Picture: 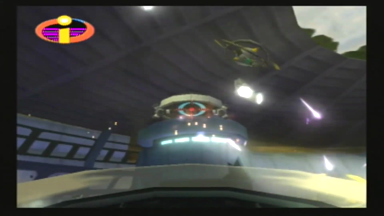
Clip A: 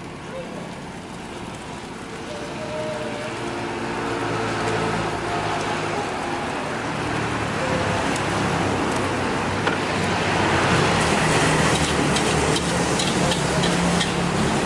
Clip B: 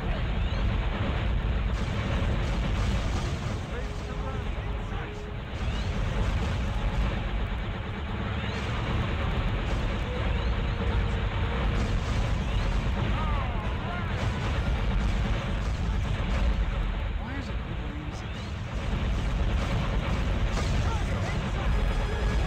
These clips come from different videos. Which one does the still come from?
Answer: B